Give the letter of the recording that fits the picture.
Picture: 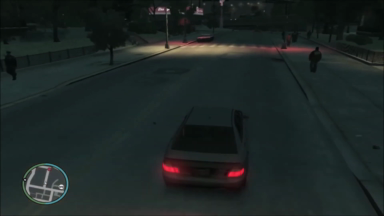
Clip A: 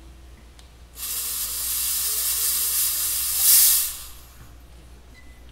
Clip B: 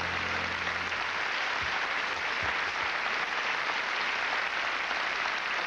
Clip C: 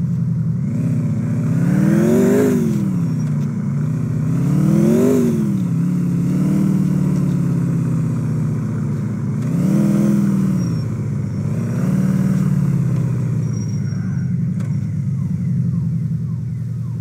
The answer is C